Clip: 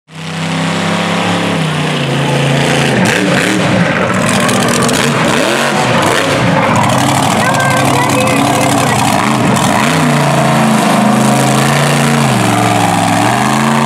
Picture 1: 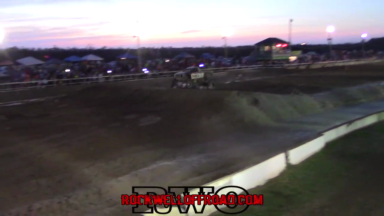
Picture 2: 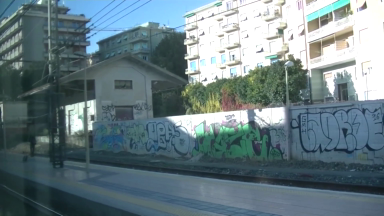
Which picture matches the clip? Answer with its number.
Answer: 1